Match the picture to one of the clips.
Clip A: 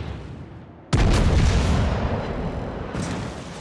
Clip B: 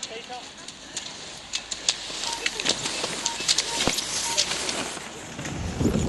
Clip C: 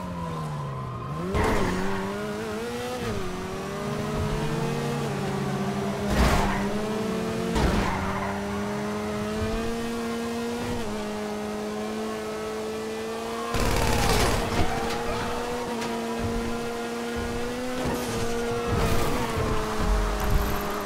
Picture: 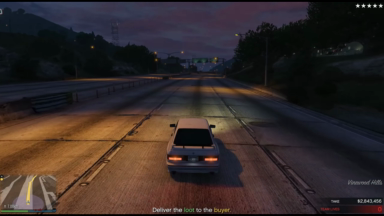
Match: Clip C